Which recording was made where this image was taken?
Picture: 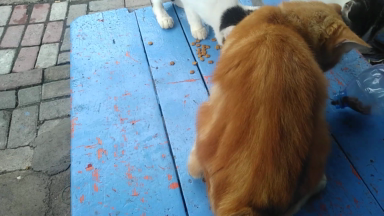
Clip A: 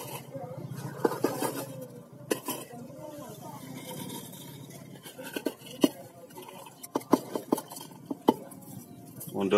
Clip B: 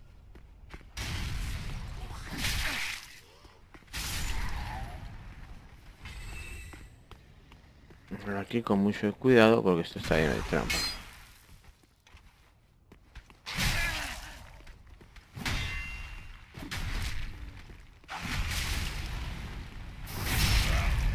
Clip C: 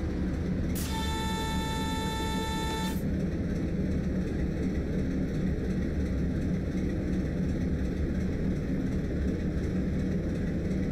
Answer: A